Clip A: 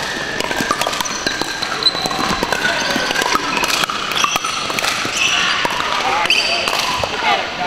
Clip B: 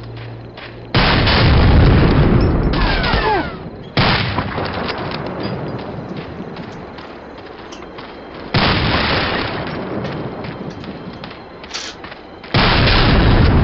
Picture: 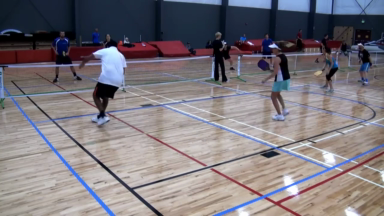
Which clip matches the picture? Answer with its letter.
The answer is A